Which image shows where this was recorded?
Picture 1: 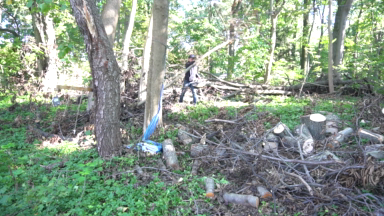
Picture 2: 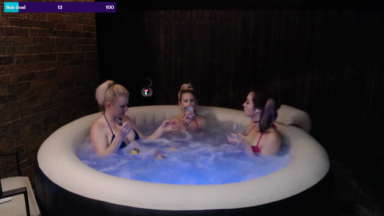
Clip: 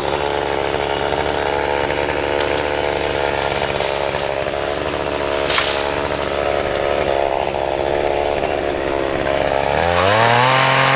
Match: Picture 1